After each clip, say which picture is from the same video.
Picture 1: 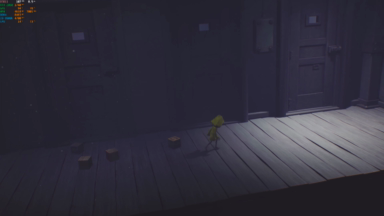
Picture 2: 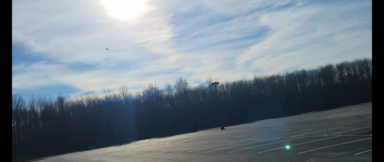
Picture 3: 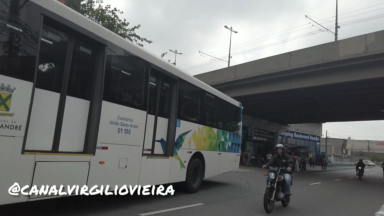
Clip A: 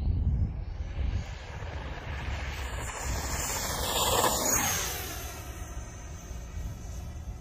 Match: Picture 2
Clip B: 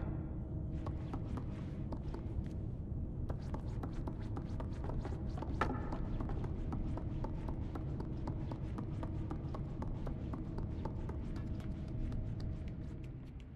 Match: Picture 1